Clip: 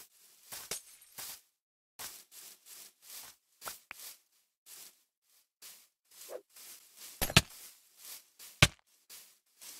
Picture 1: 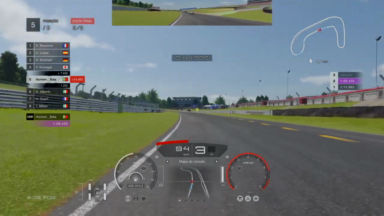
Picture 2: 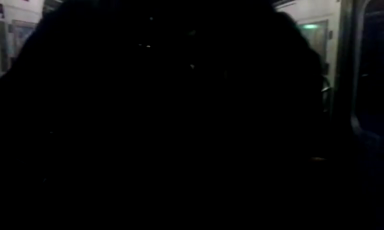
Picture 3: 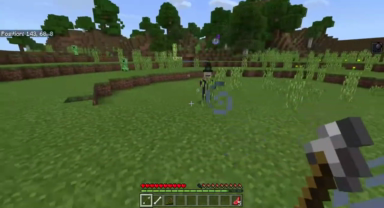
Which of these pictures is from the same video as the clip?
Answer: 3